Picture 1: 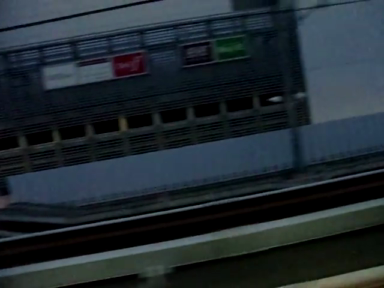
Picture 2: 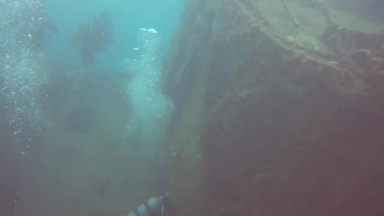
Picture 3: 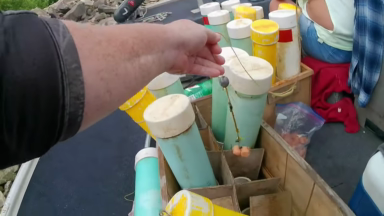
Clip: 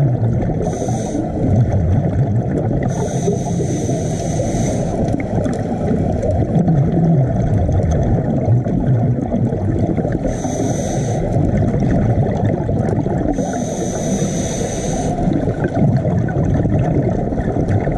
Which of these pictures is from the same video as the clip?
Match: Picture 2